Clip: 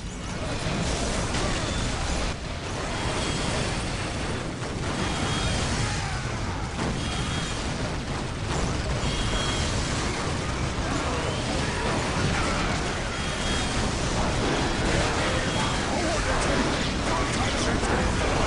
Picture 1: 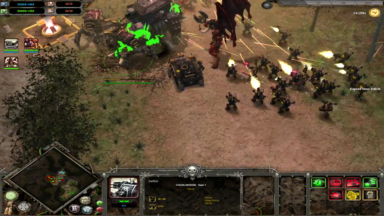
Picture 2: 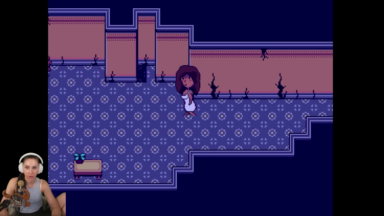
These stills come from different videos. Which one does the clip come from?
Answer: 1